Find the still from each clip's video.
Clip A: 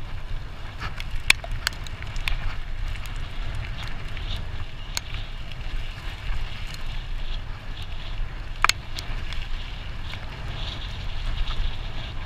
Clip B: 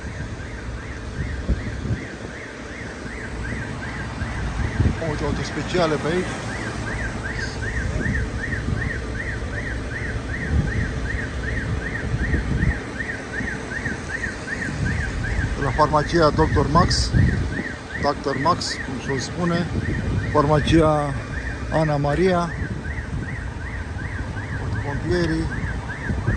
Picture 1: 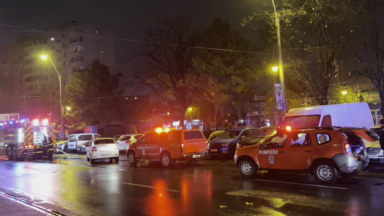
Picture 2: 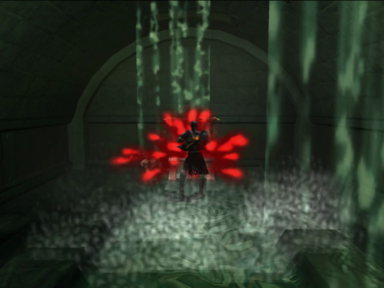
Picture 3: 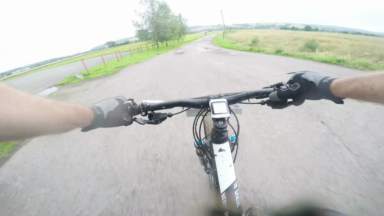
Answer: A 3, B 1